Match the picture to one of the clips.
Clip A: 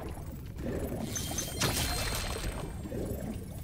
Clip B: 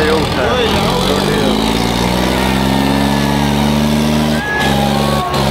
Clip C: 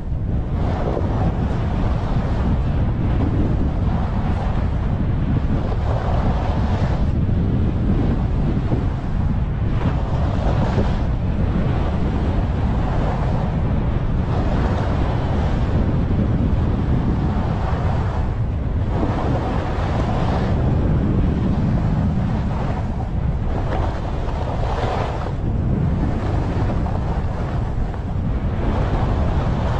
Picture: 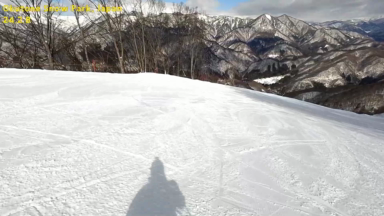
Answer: C